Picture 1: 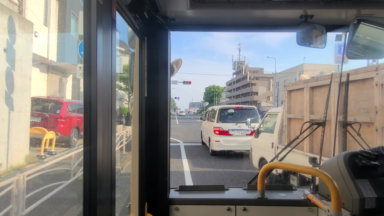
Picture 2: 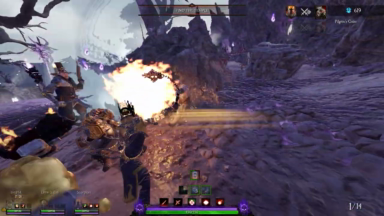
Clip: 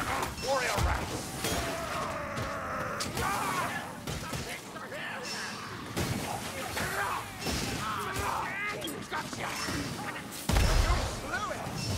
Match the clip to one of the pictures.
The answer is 2